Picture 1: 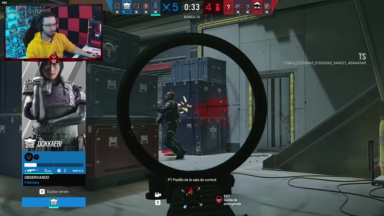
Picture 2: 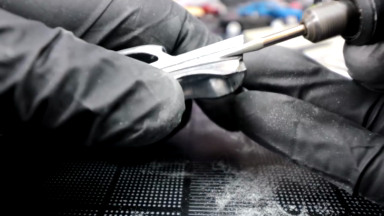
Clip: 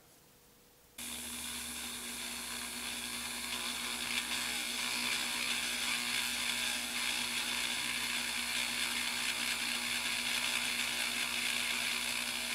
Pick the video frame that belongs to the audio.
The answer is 2